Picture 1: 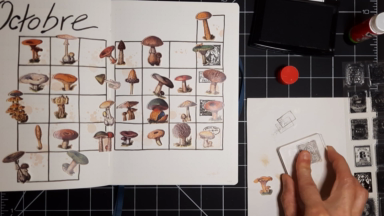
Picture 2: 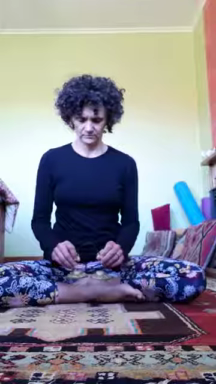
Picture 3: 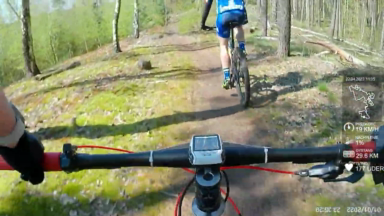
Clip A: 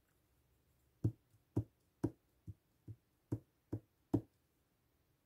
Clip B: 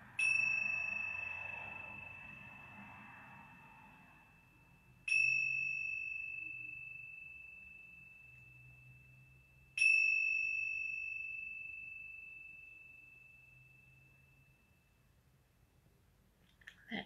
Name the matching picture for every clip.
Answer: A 1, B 2